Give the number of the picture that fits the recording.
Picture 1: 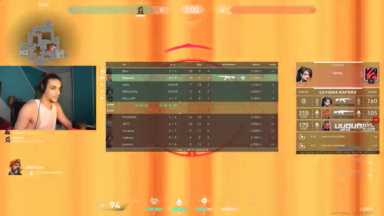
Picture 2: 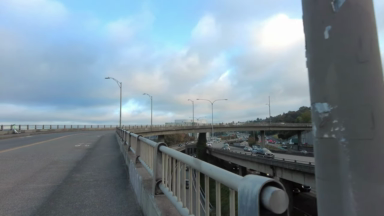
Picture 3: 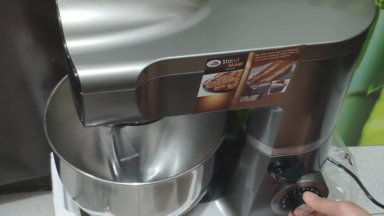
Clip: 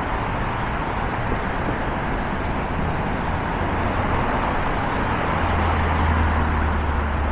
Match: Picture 2